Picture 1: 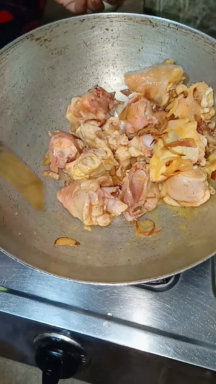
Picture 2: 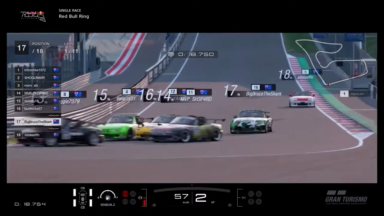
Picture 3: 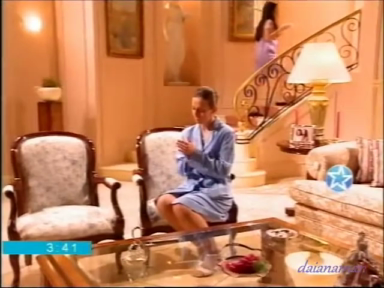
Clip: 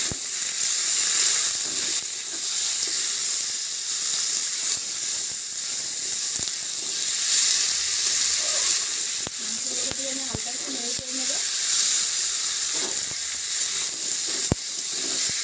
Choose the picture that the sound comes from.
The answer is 1